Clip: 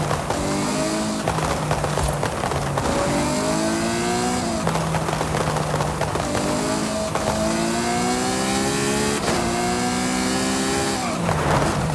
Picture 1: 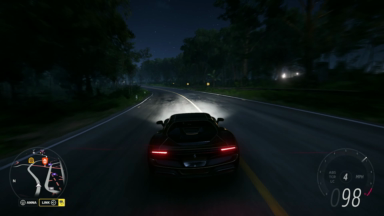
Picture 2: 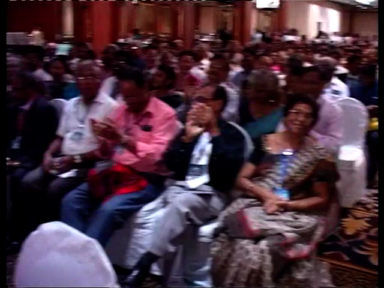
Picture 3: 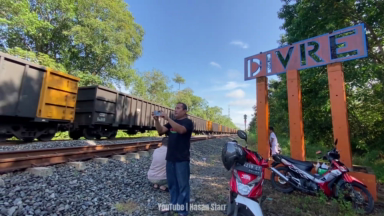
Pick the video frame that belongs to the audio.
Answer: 1